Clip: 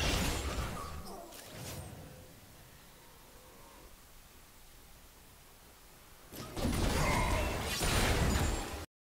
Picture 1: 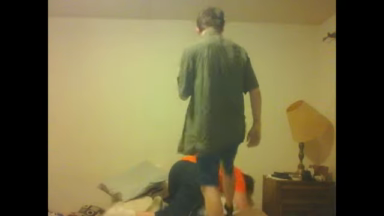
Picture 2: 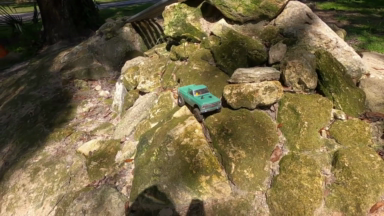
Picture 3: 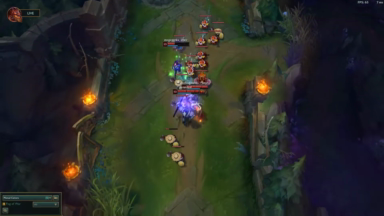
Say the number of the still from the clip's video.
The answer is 3